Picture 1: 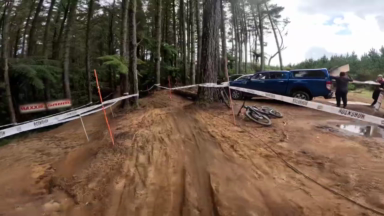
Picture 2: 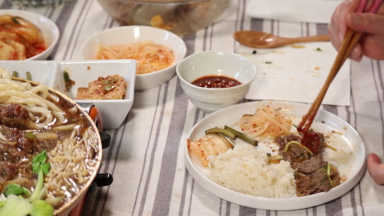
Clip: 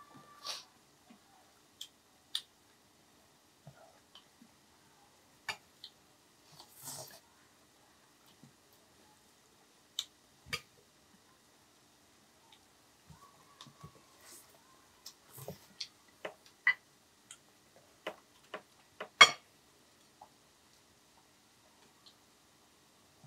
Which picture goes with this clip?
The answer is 2